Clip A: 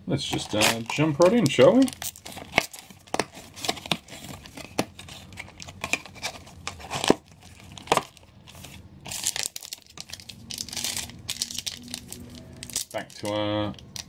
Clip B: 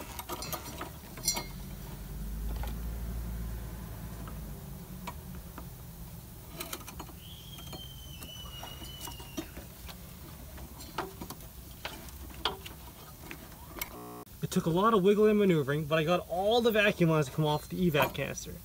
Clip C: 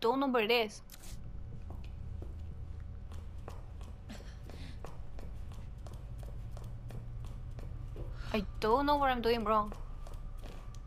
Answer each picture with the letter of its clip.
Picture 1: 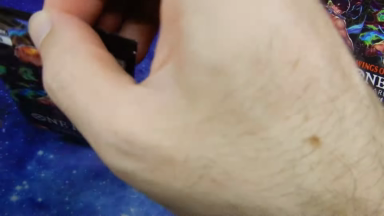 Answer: A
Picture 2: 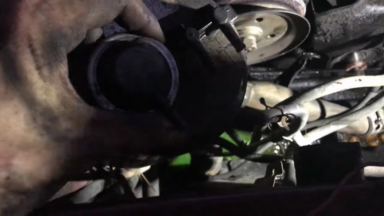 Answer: B